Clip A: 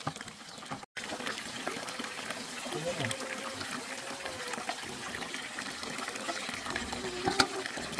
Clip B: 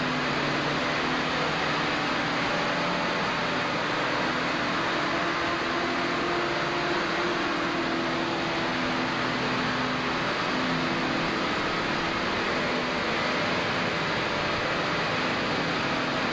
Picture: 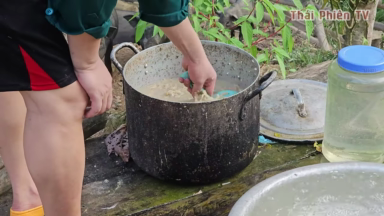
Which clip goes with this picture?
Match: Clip A